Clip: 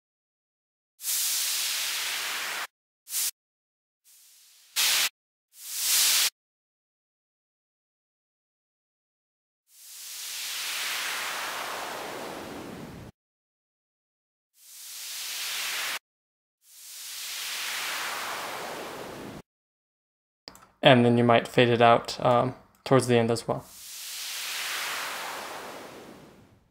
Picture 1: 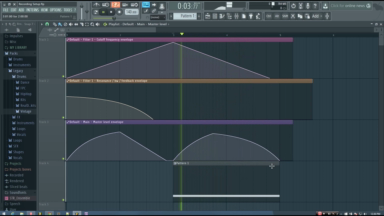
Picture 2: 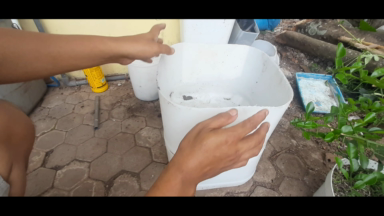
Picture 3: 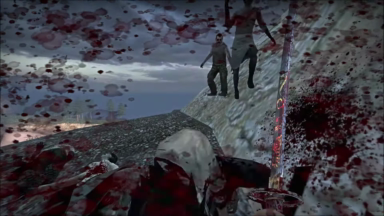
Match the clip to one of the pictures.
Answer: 1